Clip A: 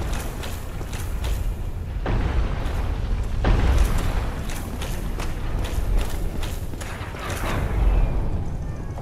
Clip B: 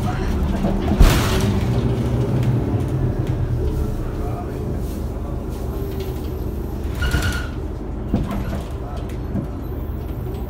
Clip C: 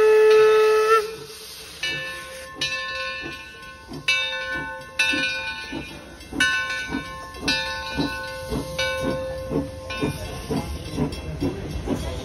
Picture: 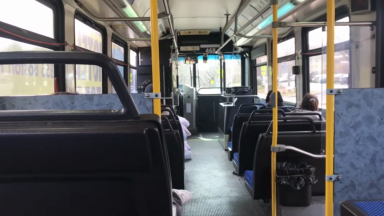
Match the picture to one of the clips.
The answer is B